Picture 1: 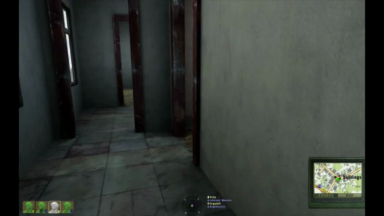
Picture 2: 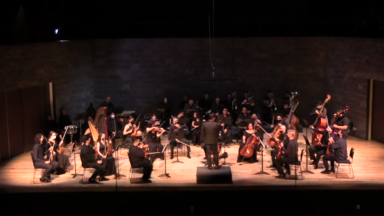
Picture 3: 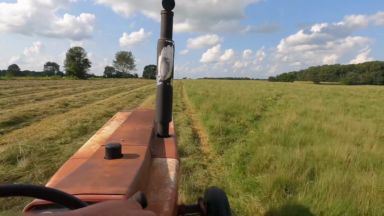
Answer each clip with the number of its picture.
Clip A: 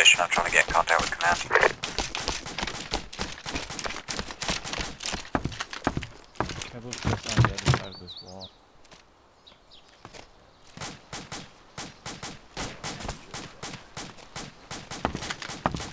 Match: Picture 1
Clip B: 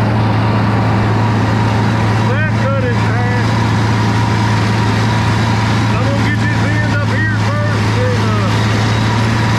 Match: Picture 3